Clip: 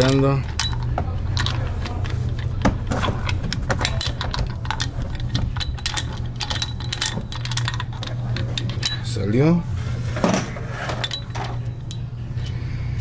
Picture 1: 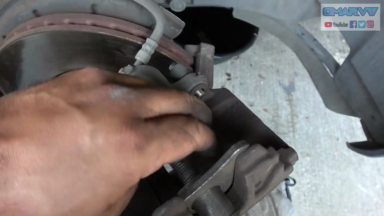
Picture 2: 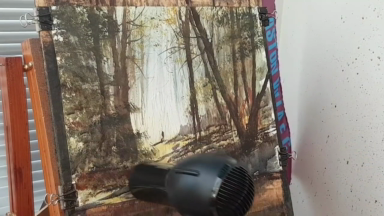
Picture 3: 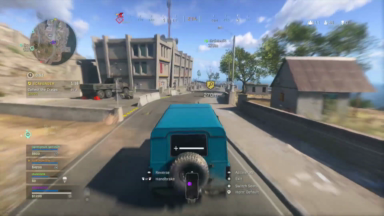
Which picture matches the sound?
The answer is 1